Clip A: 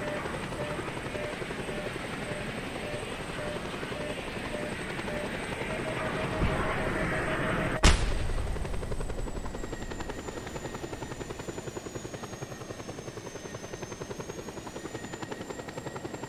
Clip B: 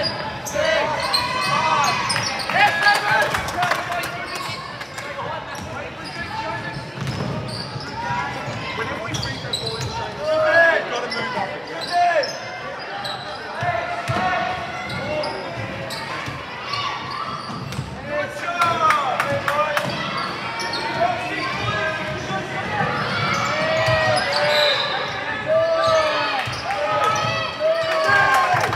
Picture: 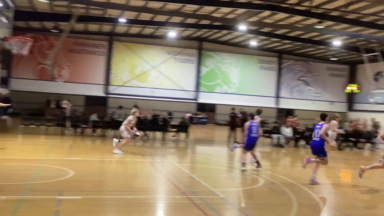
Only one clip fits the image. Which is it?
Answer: B